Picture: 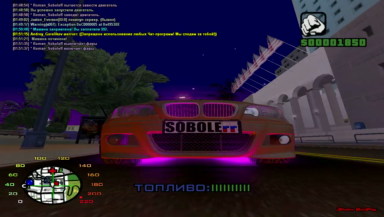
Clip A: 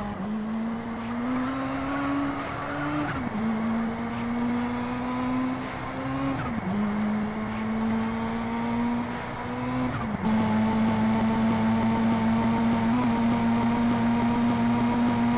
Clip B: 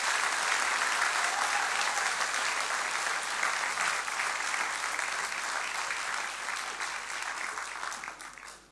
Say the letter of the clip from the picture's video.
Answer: A